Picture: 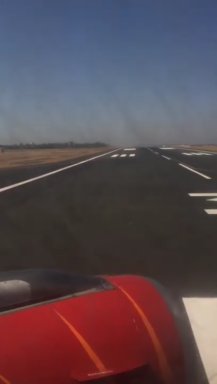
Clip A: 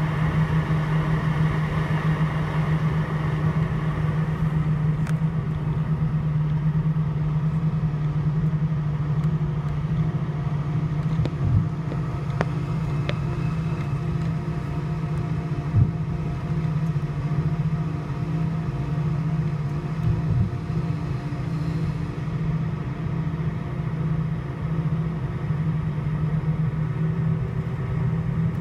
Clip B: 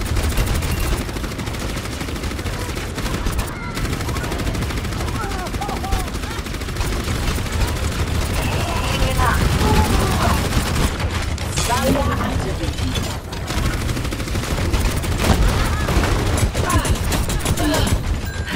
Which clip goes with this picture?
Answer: A